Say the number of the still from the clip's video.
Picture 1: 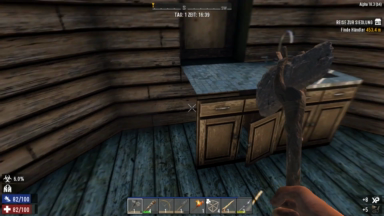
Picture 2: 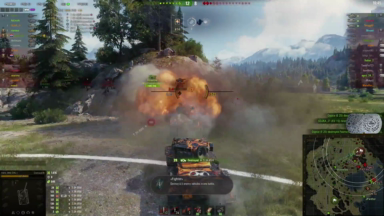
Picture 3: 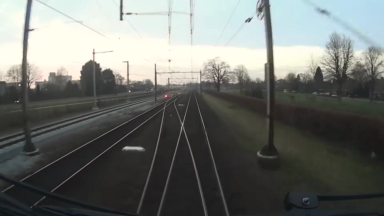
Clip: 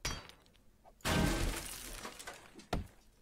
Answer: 1